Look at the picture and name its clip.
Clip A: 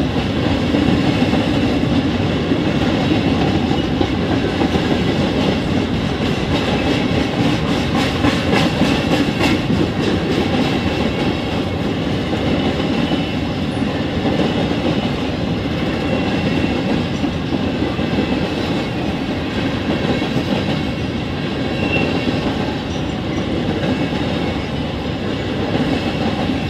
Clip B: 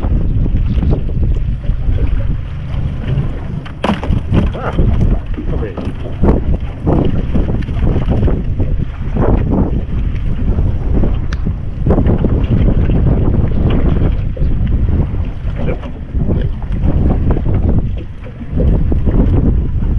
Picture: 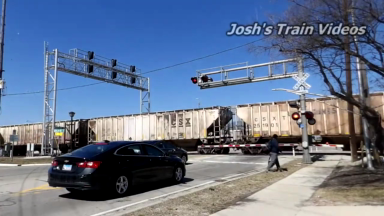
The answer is A